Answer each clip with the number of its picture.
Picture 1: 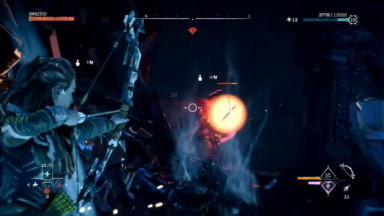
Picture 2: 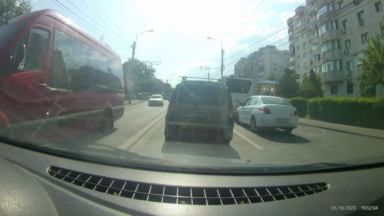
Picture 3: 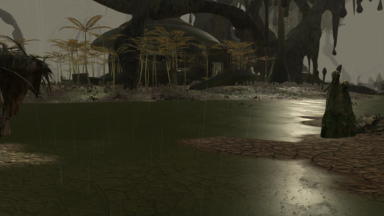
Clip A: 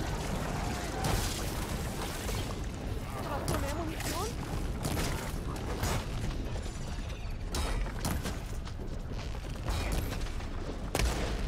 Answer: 1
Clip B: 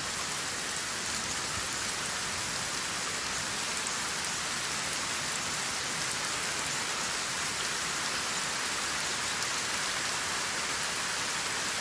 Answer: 3